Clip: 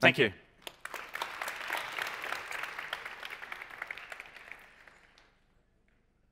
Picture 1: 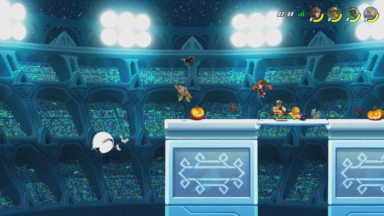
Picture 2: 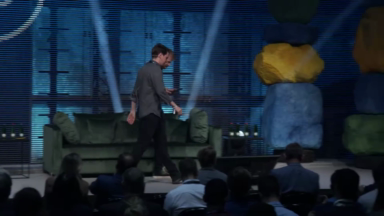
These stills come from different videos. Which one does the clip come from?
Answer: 2